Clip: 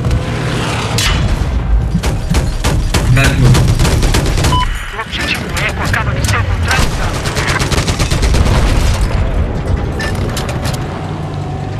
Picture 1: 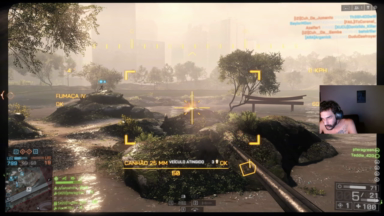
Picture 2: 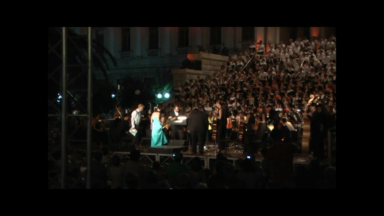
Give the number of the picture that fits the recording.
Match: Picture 1